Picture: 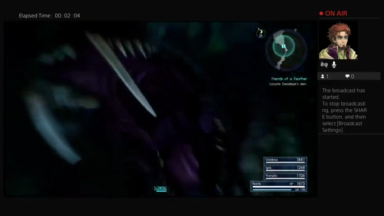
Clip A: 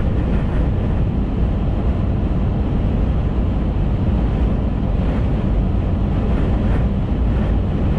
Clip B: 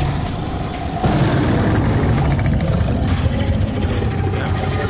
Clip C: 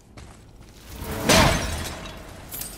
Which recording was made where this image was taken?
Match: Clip B